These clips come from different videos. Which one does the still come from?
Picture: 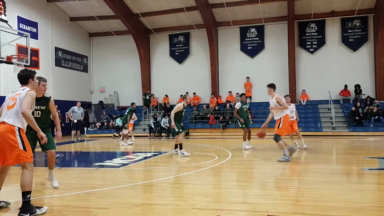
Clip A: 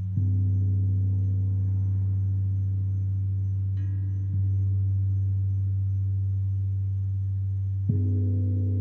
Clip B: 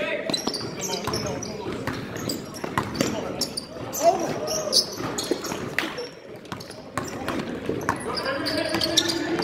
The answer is B